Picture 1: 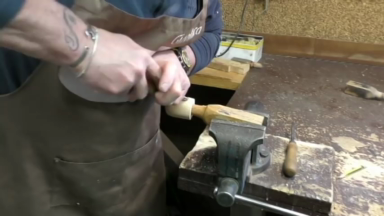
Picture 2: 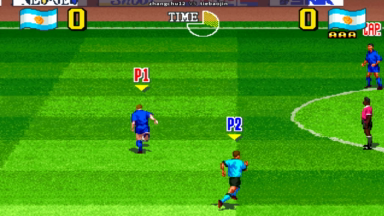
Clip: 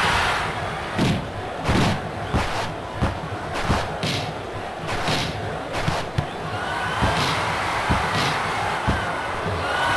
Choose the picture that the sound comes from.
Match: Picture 2